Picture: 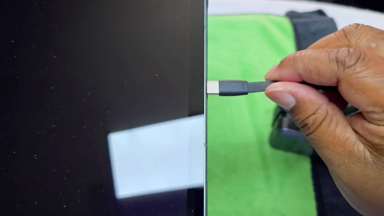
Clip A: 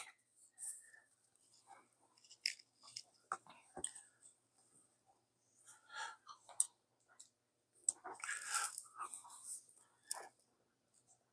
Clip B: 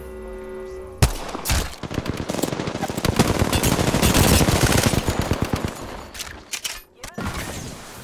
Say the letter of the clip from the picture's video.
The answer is A